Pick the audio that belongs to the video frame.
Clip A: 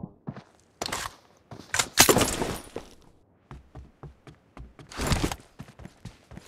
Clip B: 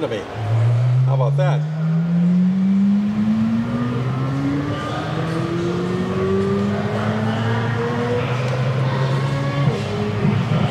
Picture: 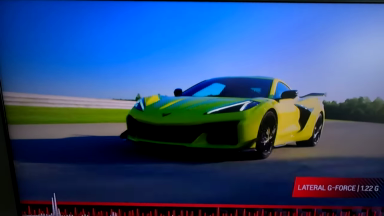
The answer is B